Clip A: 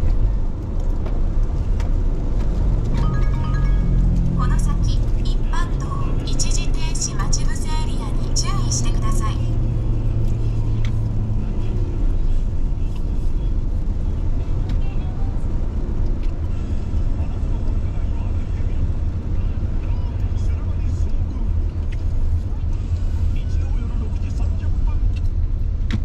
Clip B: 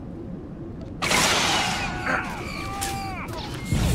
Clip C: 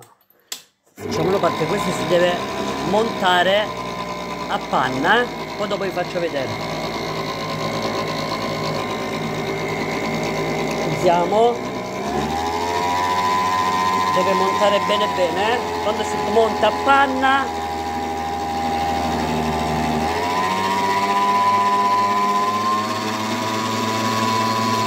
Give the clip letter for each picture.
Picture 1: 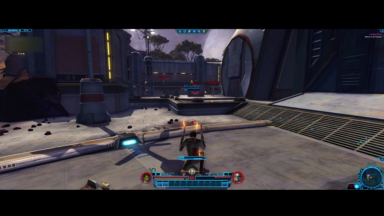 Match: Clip B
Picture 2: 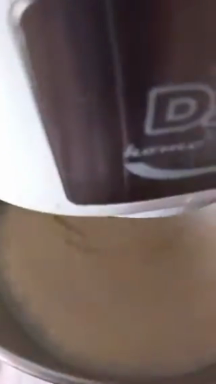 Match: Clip C